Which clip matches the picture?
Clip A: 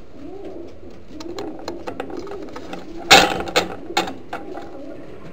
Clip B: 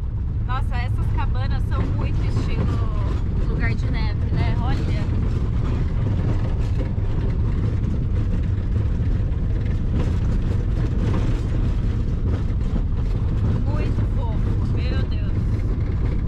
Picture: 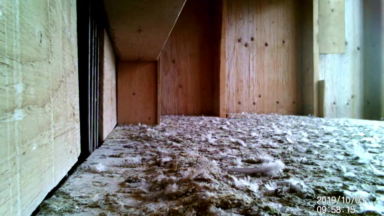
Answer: A